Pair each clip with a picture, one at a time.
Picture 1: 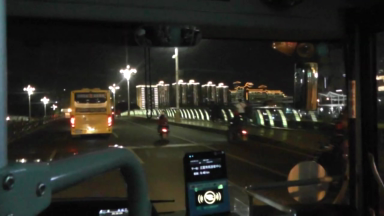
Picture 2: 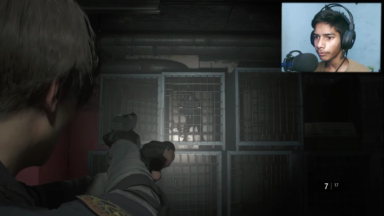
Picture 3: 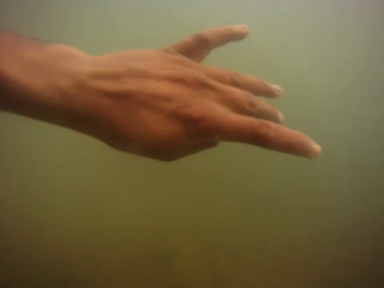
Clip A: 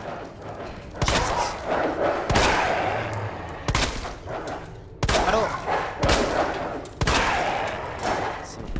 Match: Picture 2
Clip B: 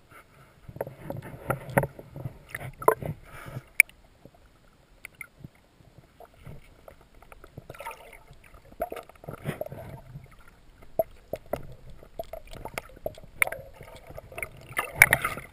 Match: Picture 3